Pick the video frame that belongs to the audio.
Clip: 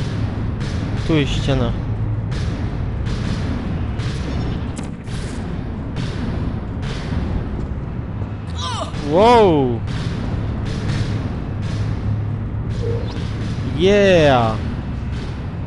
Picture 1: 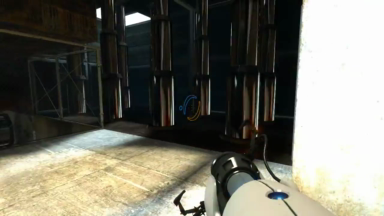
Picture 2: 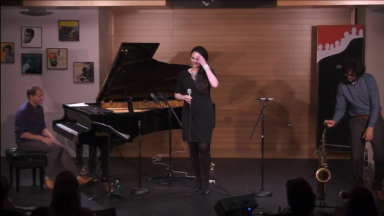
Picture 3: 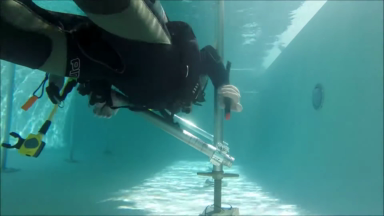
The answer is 1